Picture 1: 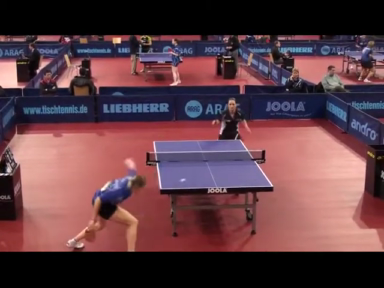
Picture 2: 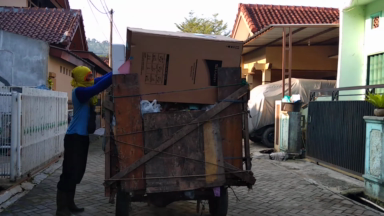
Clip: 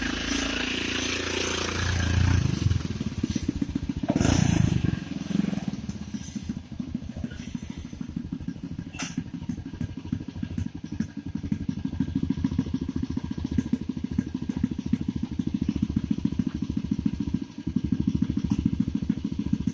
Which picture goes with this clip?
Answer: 2